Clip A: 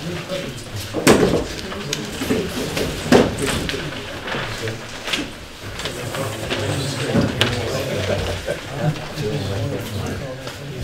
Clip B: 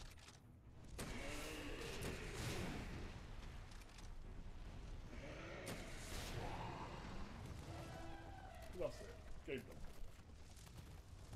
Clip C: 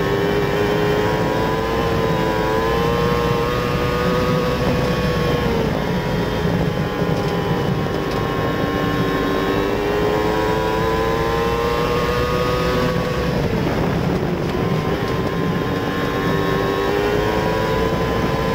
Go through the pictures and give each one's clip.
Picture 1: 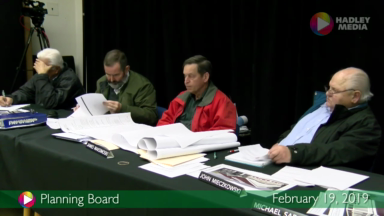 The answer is A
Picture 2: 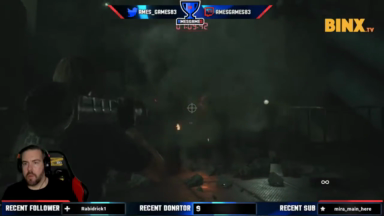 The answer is B